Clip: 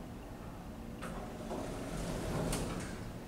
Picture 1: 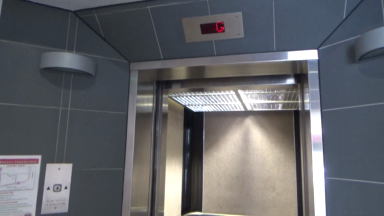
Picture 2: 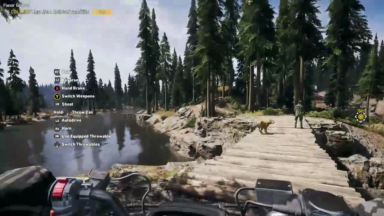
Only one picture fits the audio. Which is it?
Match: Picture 1